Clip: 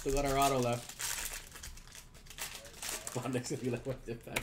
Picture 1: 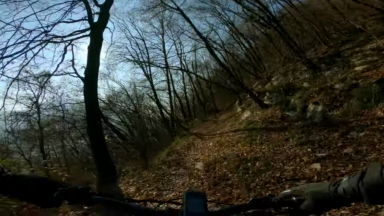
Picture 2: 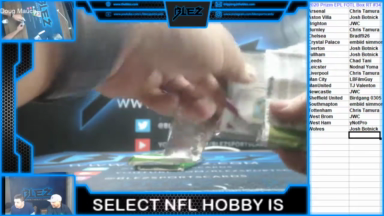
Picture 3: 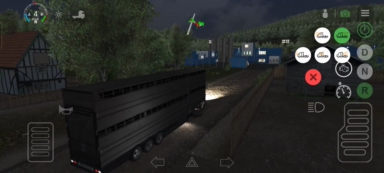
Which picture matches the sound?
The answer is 2